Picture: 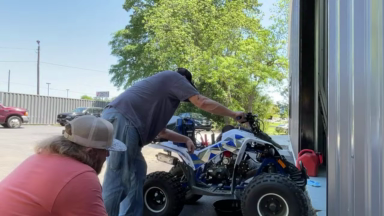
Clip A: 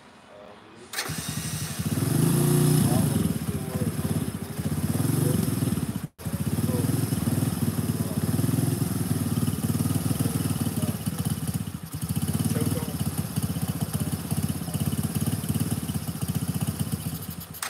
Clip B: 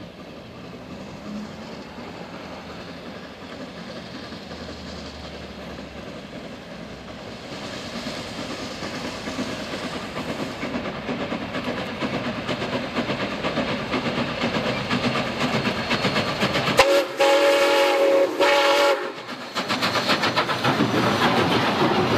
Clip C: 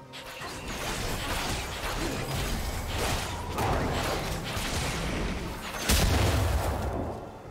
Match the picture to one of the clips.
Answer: A